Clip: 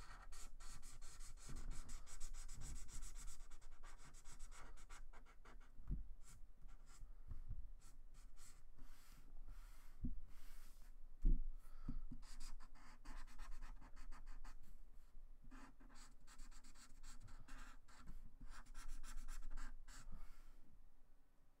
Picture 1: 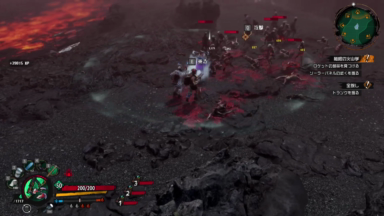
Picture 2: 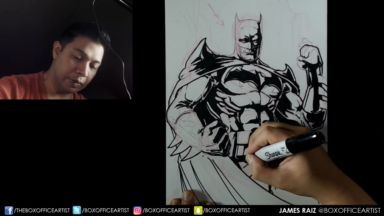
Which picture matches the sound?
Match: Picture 2